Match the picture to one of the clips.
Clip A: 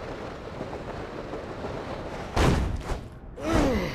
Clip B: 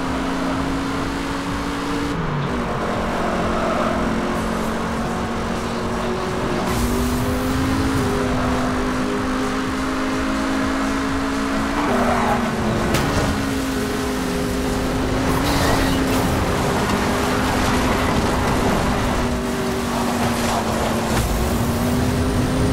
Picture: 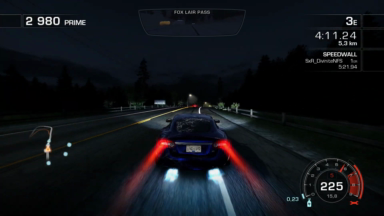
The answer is B